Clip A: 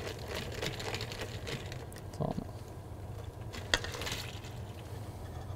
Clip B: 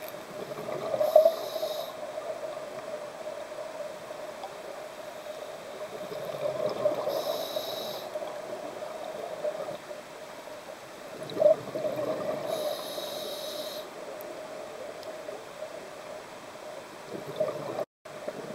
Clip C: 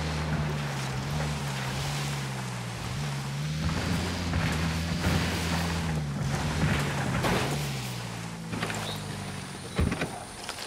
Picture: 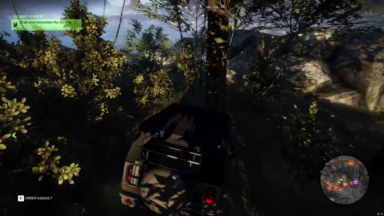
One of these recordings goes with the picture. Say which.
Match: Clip C